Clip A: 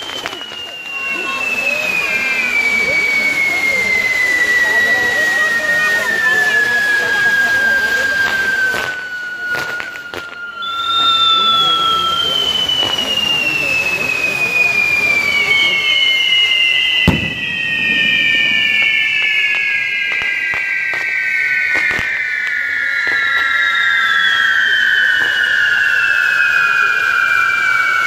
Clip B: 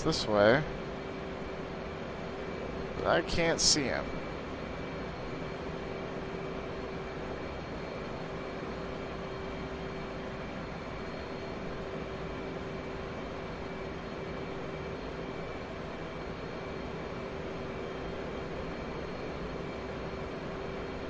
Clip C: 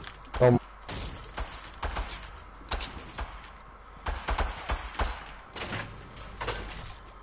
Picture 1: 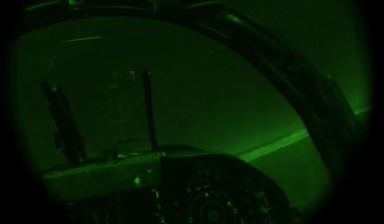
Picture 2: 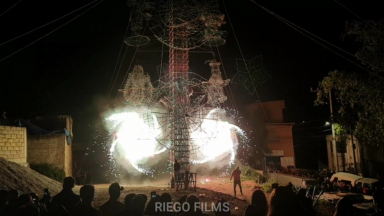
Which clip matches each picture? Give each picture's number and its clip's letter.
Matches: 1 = B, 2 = A